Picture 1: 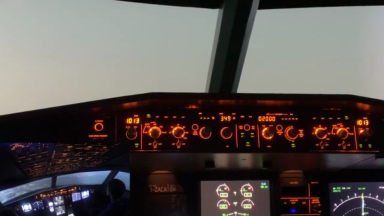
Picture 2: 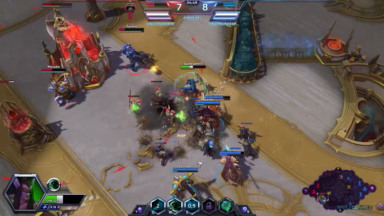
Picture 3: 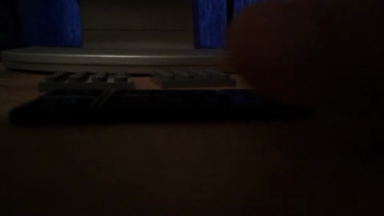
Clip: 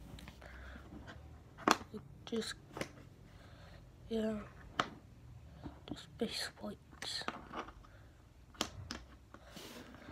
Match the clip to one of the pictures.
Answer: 3